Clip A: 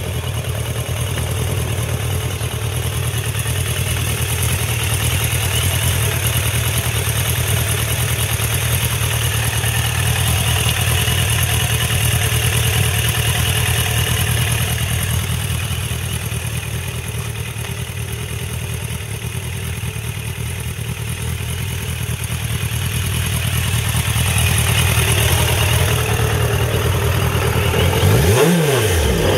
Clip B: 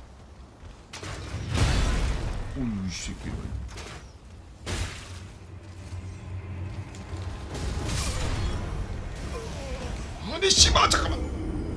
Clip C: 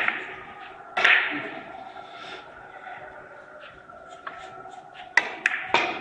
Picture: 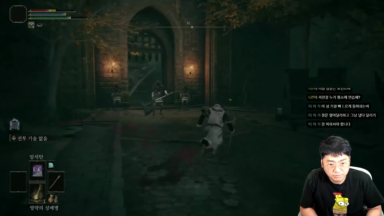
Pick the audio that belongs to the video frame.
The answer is B